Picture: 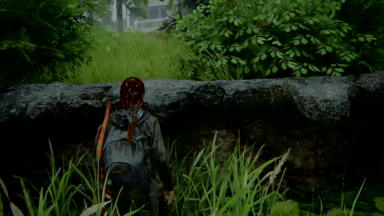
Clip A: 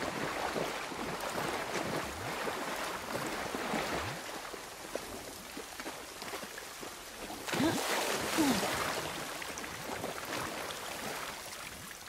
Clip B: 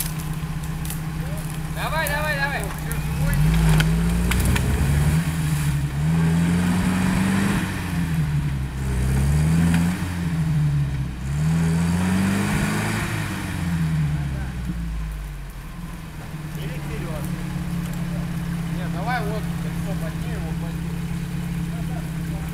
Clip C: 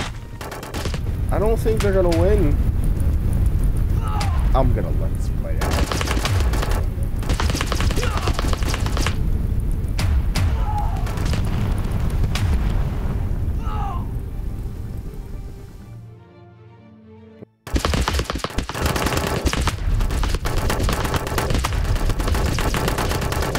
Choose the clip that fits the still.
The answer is A